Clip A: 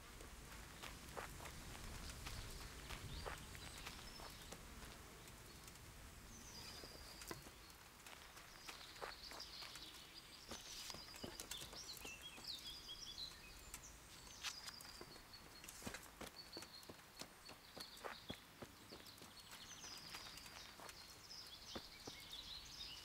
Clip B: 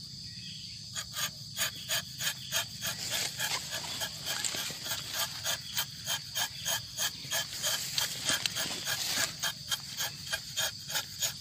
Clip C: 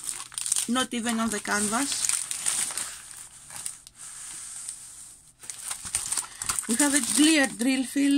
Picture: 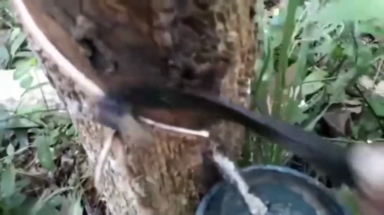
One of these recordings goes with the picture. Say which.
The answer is B